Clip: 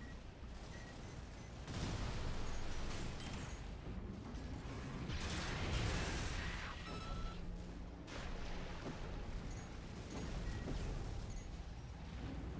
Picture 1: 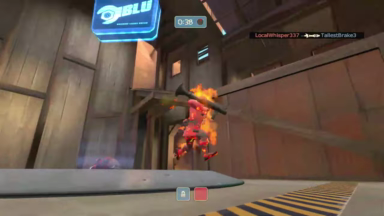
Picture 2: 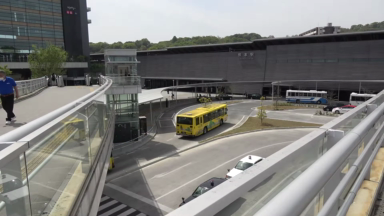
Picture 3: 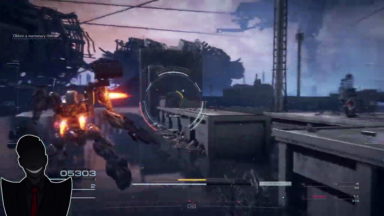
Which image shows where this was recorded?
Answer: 3